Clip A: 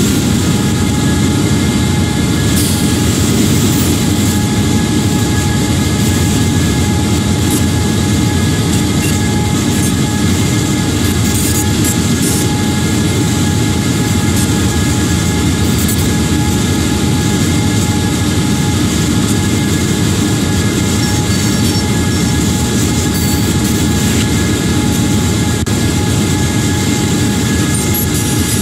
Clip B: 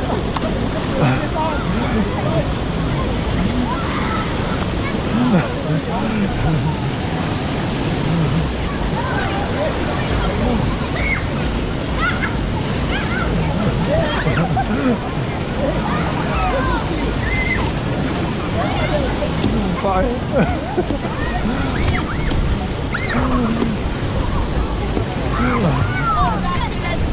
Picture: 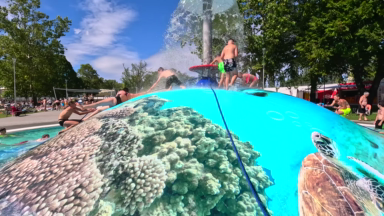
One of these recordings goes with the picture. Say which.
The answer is B